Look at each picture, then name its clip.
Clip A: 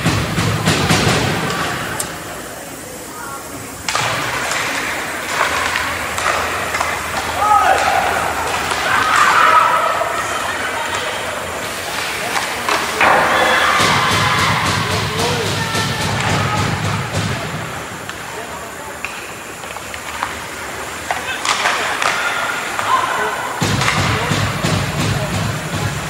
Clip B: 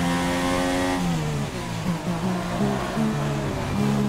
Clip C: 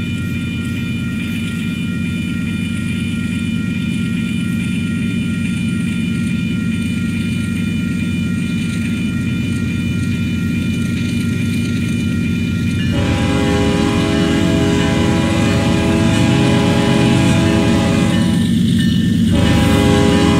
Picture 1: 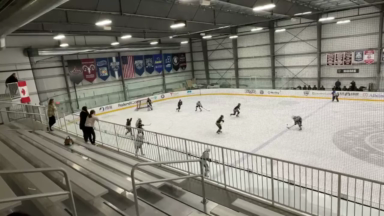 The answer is A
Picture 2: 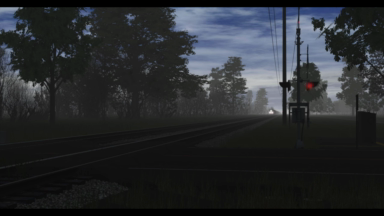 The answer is C